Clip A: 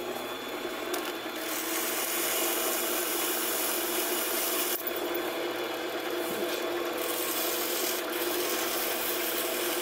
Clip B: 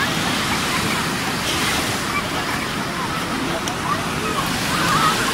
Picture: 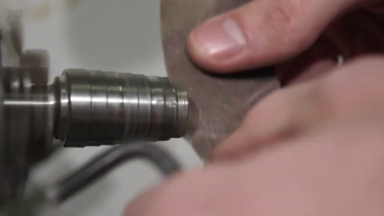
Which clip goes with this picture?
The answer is A